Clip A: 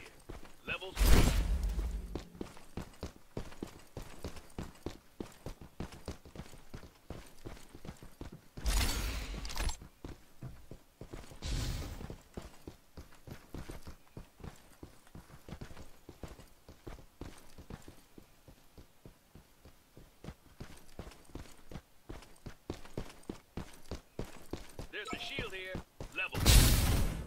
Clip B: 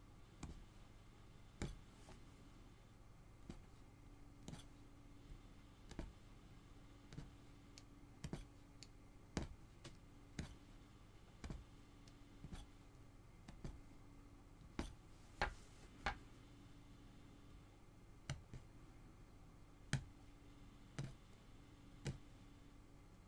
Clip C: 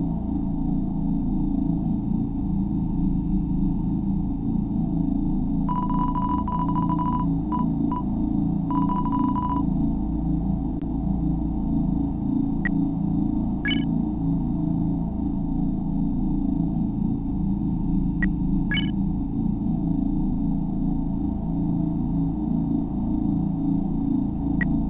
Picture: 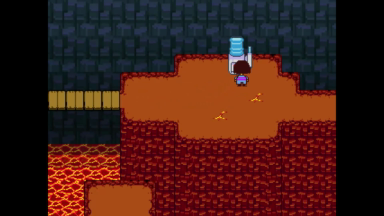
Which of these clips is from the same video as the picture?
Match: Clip C